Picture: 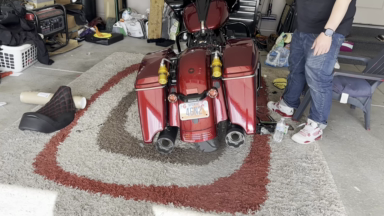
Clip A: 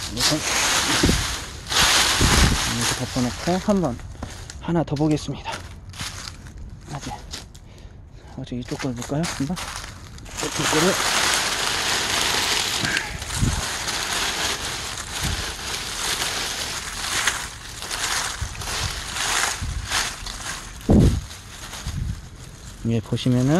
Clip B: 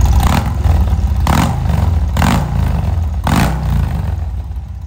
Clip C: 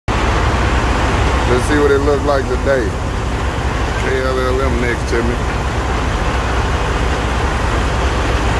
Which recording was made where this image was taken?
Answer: B